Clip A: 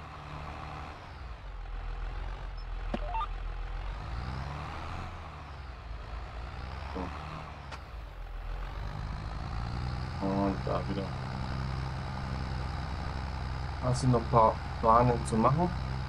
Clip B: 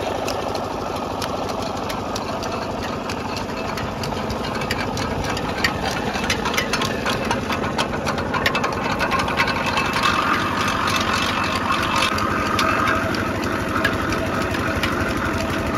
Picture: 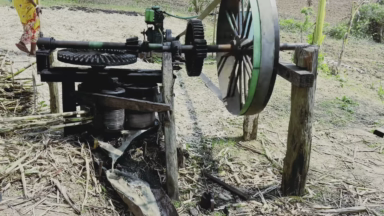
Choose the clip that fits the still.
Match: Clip B